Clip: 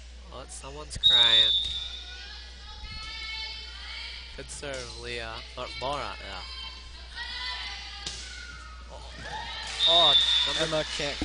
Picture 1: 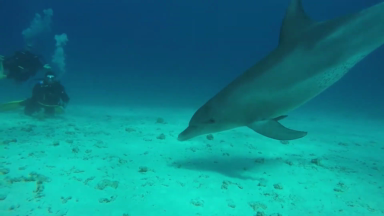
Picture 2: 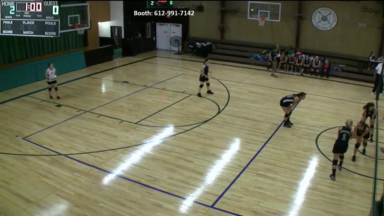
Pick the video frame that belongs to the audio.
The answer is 2